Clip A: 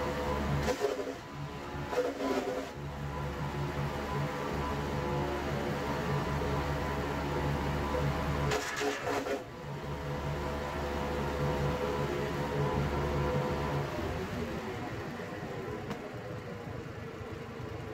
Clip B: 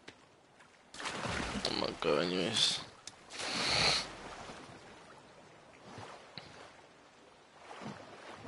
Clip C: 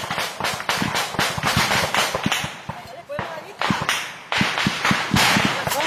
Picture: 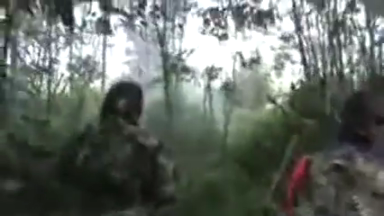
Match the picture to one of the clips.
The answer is C